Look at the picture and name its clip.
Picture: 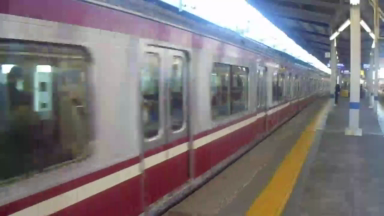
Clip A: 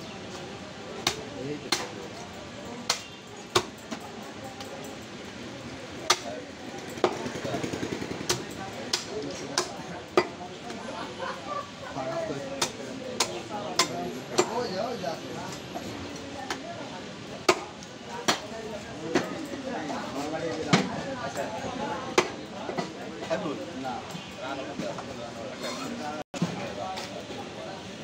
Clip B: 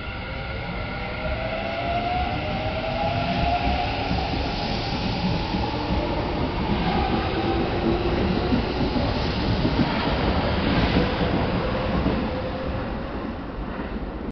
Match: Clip B